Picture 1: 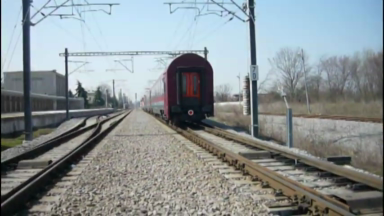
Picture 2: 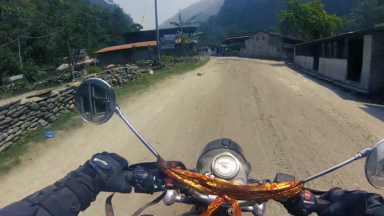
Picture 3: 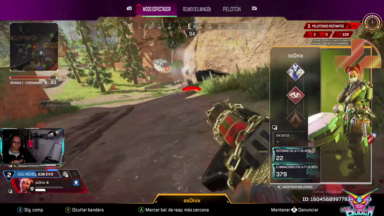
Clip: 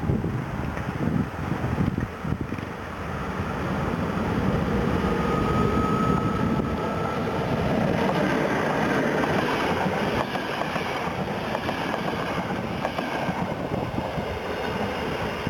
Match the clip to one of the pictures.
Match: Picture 1